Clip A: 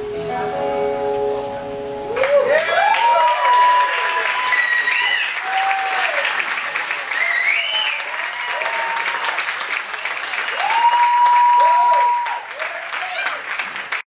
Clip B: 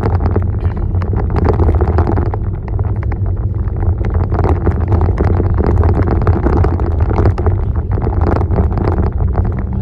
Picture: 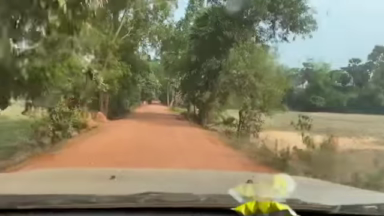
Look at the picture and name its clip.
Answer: B